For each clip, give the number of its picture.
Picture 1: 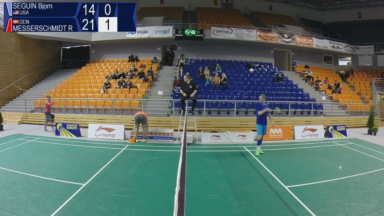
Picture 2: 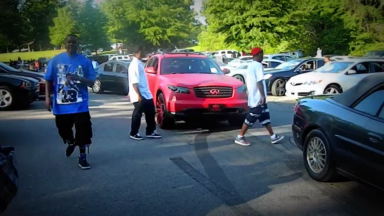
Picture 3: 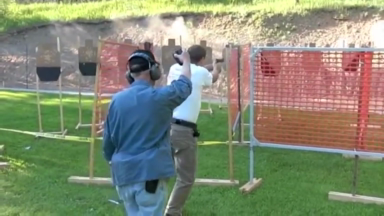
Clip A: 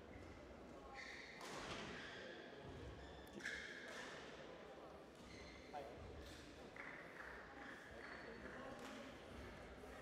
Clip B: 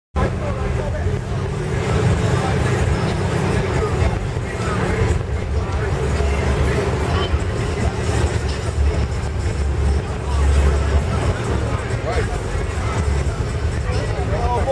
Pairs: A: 1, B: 2